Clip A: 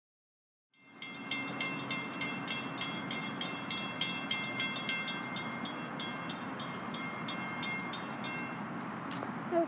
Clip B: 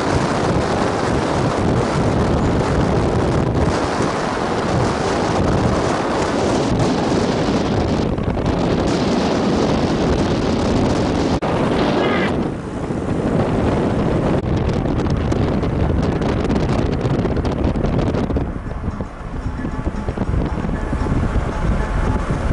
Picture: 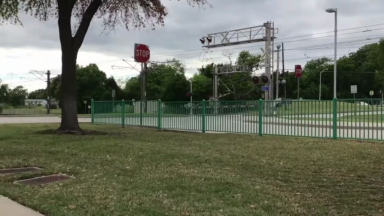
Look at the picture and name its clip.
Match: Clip A